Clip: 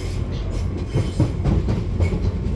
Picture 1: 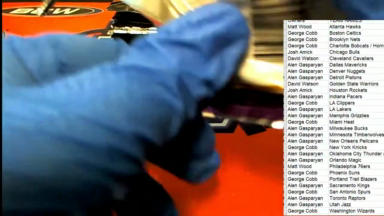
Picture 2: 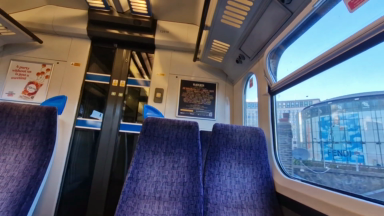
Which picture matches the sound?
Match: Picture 2